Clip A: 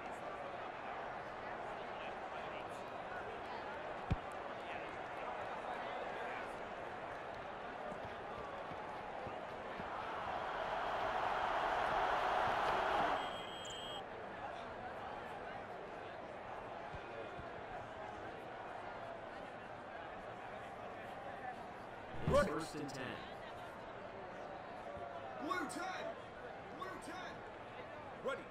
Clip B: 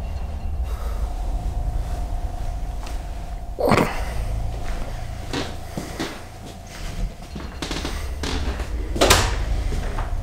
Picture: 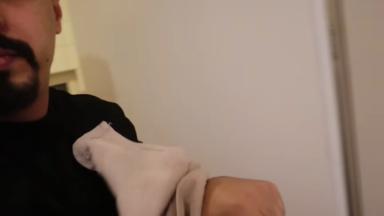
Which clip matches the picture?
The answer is B